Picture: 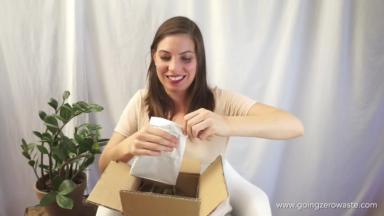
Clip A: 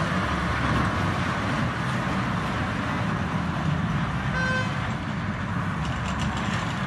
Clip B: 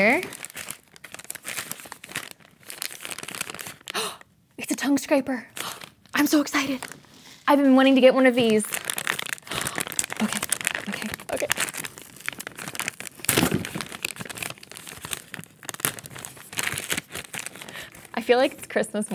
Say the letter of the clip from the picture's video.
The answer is B